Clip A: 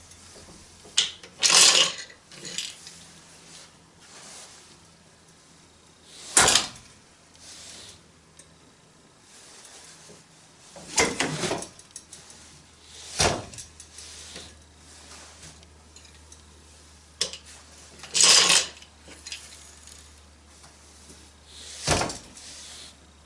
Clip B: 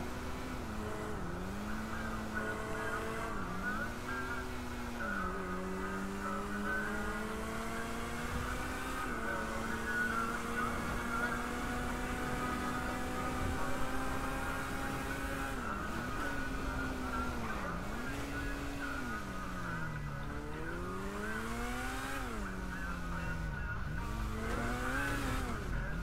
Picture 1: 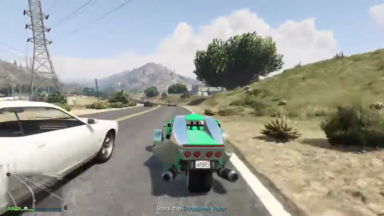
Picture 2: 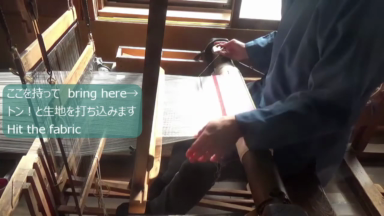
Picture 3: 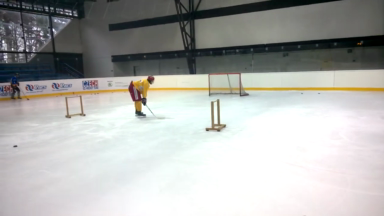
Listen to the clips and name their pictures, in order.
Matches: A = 2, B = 1